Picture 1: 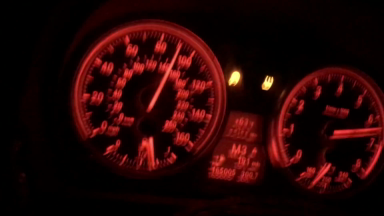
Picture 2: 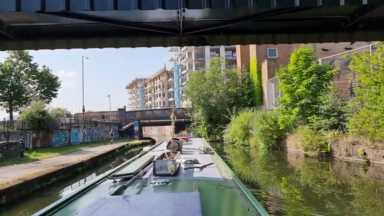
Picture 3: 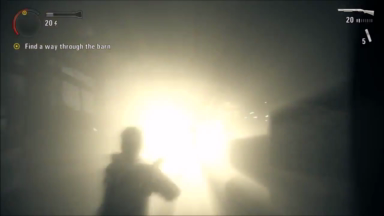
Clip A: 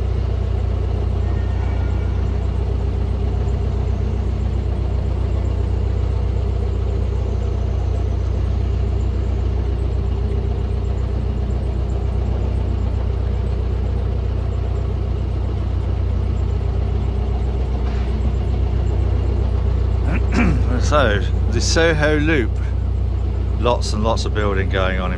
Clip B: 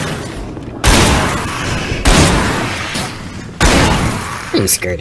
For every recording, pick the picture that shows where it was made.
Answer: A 2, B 3